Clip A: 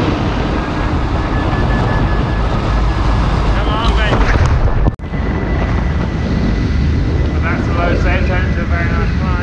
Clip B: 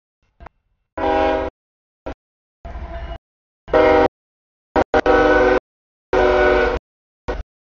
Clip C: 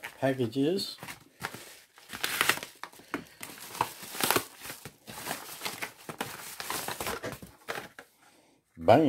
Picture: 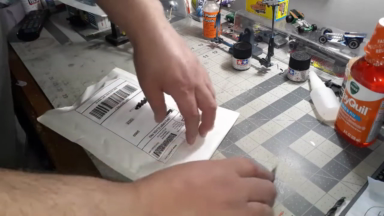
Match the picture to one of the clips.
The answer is C